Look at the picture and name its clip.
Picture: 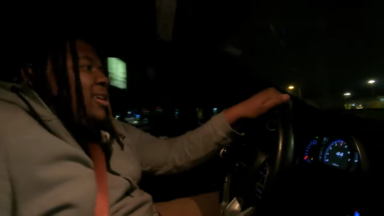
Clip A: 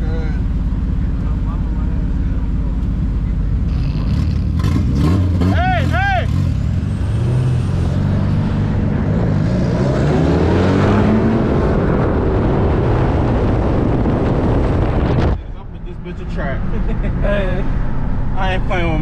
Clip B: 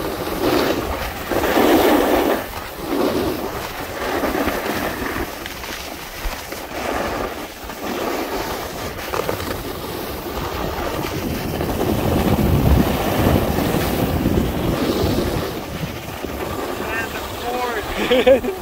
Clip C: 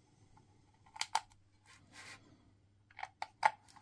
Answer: A